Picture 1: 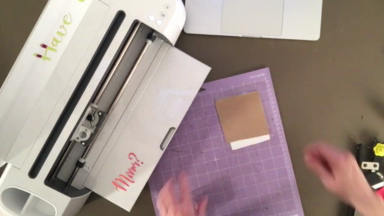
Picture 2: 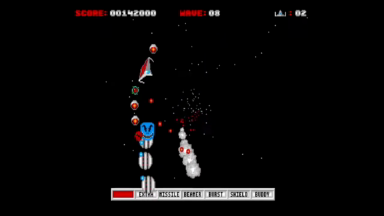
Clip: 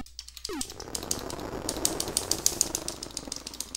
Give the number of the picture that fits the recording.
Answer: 2